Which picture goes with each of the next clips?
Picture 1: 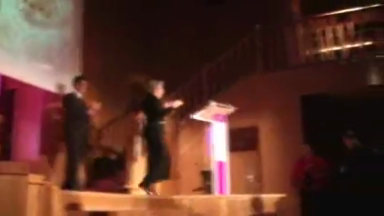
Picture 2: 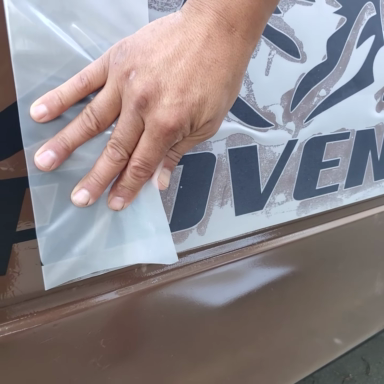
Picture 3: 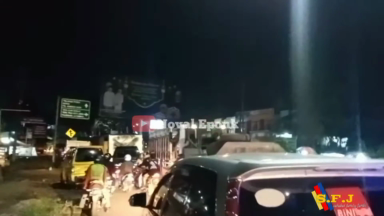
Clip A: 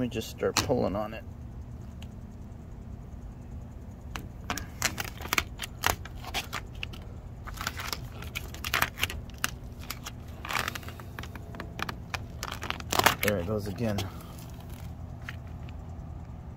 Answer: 2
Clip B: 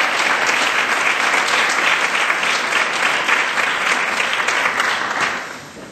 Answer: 1